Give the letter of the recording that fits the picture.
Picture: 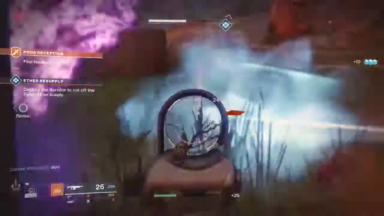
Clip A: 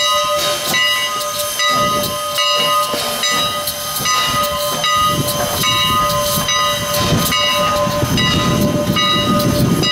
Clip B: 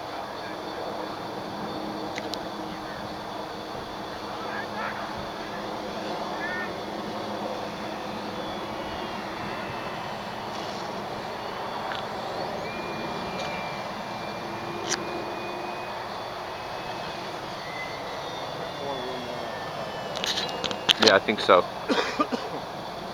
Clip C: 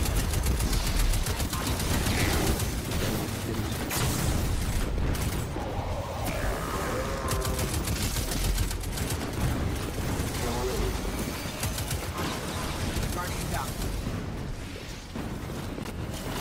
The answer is C